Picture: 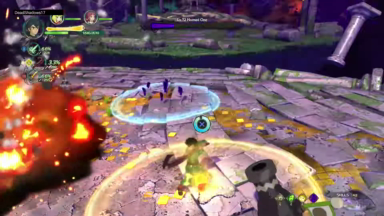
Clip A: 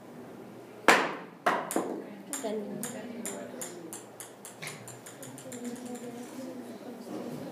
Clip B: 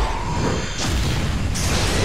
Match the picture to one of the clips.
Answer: B